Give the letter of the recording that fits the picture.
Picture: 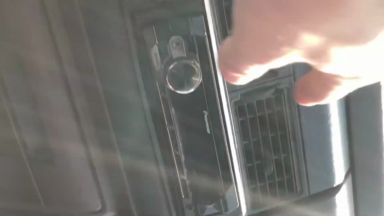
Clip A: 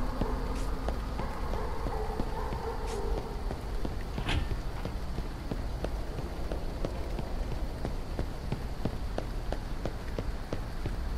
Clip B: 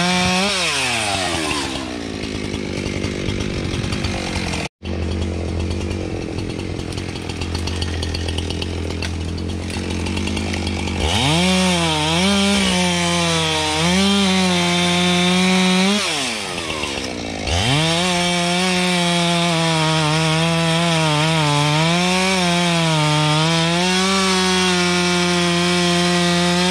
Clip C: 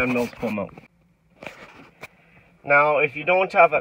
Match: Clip C